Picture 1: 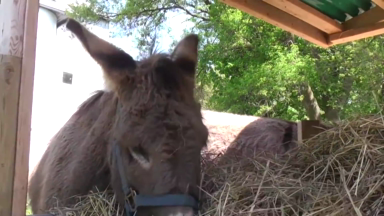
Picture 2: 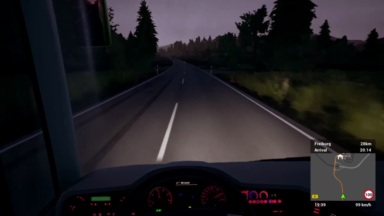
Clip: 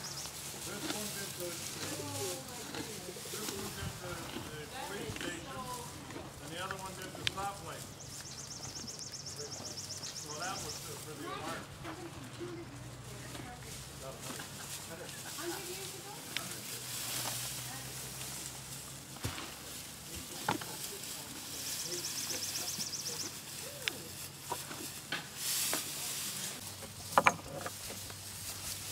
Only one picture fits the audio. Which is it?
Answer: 1